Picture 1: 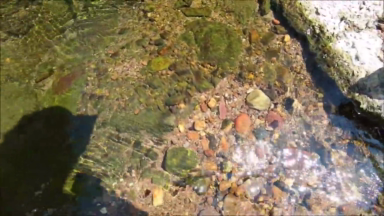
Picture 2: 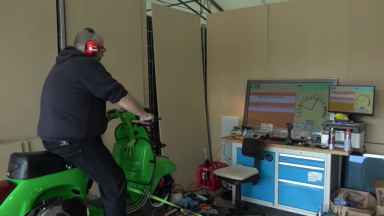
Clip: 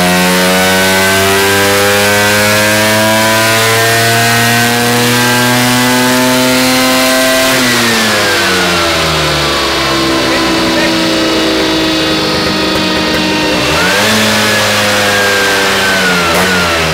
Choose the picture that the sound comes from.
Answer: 2